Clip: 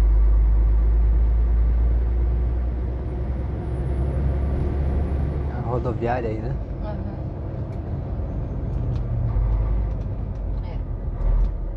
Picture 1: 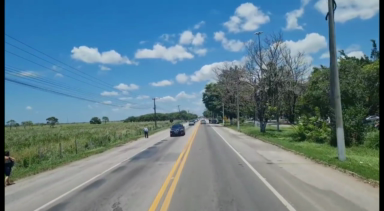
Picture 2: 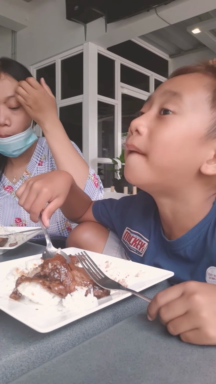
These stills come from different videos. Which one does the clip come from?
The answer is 1